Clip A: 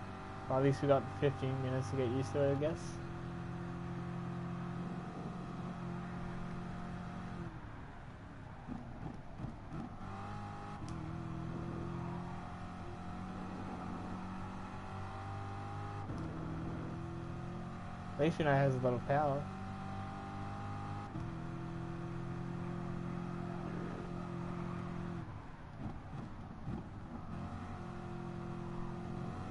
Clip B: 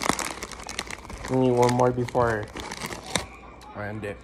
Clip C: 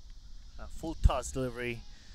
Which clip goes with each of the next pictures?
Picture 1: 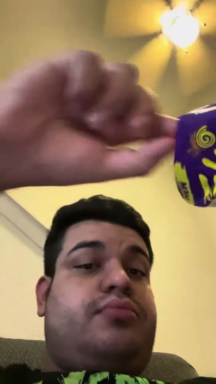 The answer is B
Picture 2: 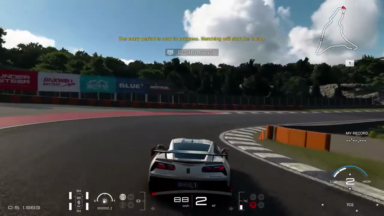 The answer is A